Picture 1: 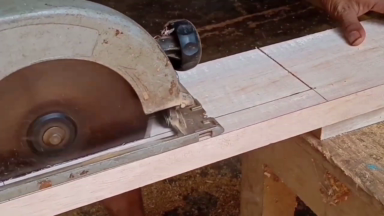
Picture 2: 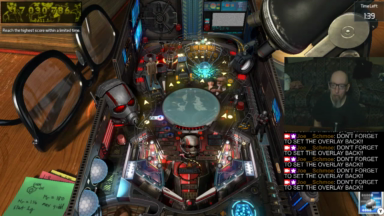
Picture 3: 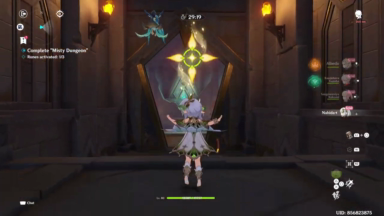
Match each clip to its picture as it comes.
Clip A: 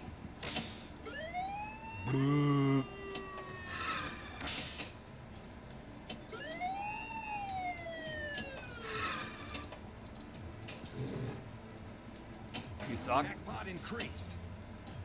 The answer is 2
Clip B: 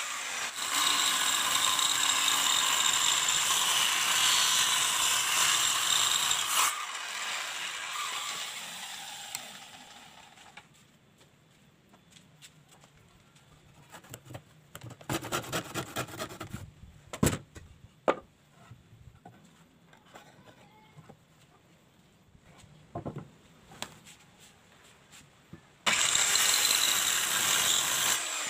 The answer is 1